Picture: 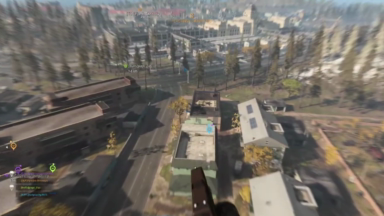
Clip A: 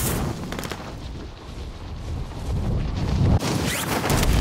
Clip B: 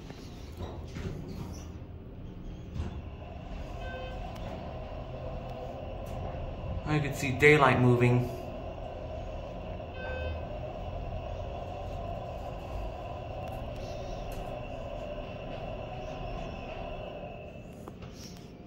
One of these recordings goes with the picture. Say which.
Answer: A